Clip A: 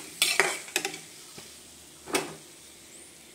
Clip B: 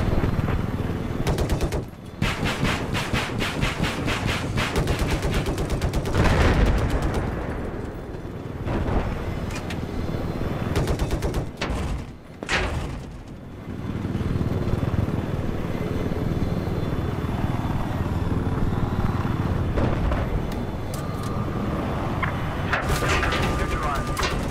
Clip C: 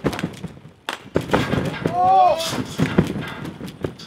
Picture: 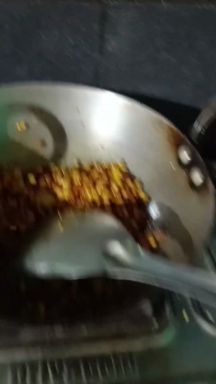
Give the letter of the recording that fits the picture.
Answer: A